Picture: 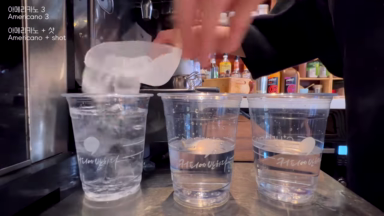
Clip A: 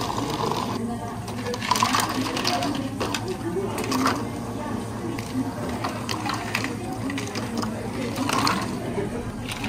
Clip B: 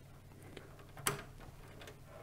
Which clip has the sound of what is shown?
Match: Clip A